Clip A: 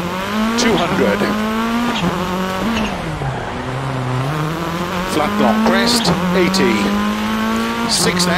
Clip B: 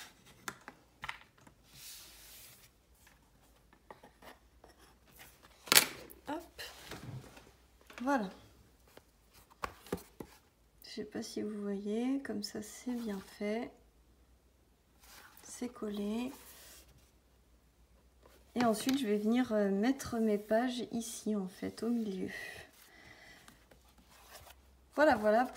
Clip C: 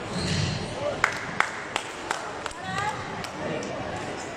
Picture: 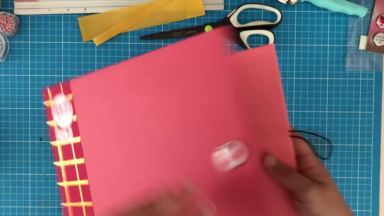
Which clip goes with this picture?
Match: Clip B